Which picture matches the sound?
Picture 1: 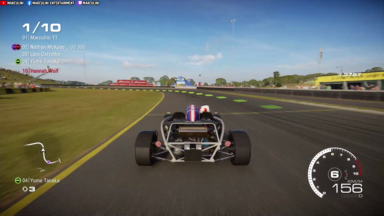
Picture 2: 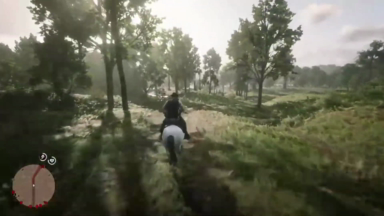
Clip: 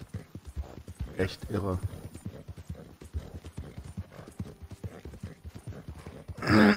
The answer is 2